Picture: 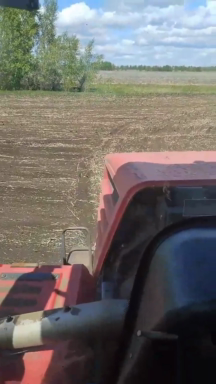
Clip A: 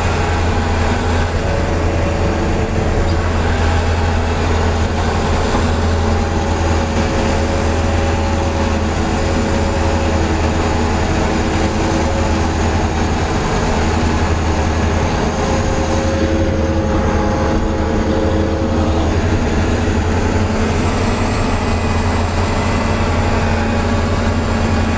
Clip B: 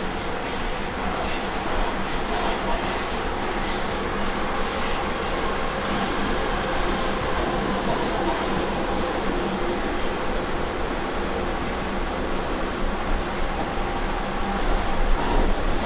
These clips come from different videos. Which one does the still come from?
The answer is A